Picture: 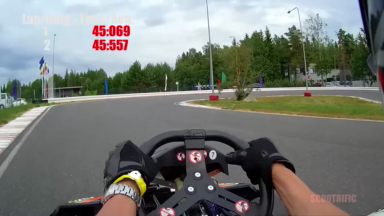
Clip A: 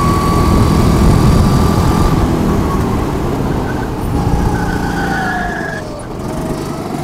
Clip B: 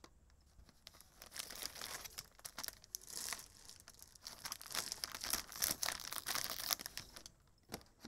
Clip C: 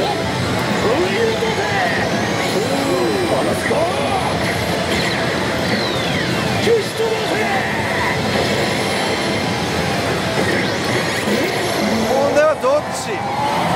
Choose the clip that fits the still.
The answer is A